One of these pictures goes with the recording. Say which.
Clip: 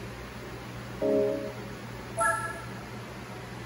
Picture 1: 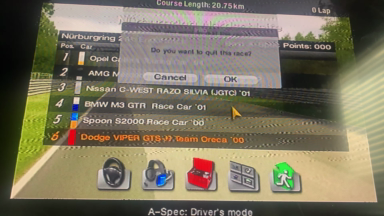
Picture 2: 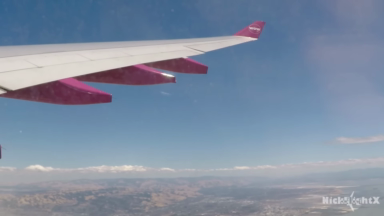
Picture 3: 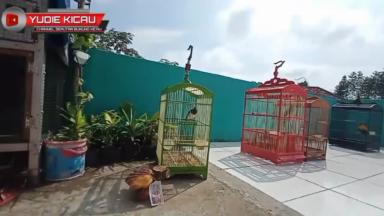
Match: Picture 1